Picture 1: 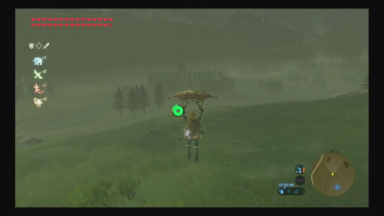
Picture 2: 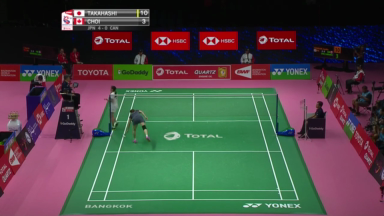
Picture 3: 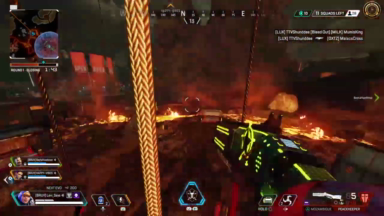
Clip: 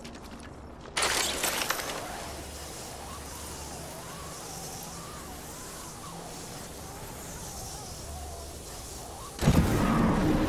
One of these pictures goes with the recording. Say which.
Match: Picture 3